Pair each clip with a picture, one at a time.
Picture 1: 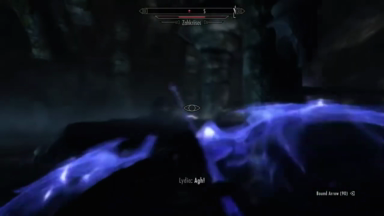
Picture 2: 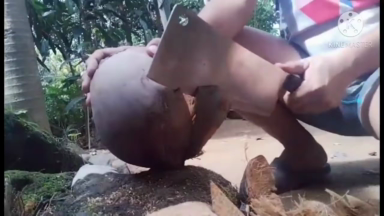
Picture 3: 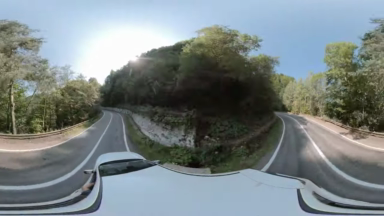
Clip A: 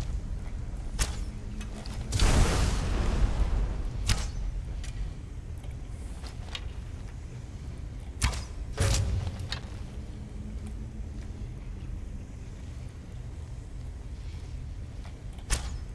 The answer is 1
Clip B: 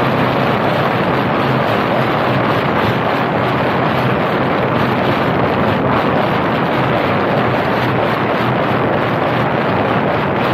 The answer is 3